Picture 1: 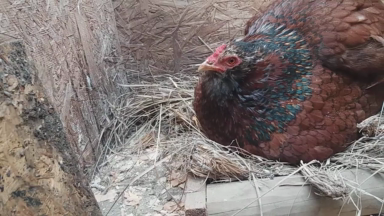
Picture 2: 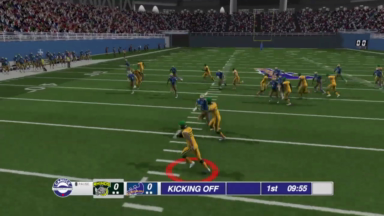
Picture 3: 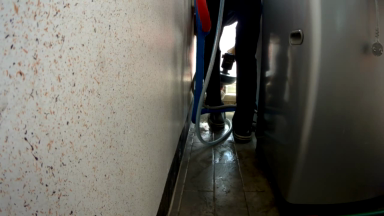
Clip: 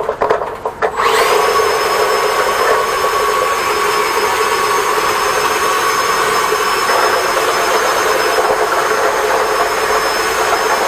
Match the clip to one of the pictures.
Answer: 3